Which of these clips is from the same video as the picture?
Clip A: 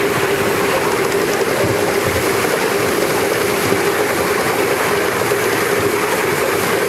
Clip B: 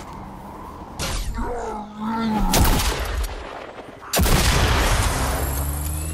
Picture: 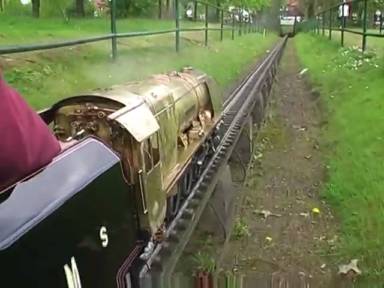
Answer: A